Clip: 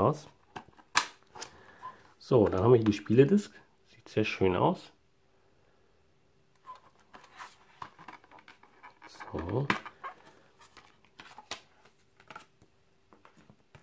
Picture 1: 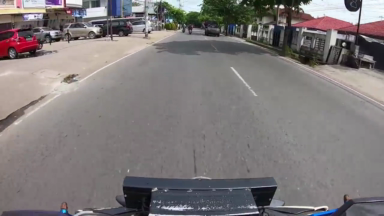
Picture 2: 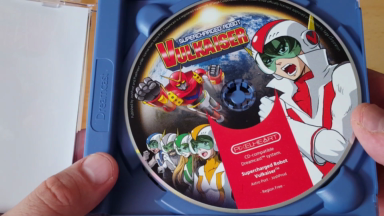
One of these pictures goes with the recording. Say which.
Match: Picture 2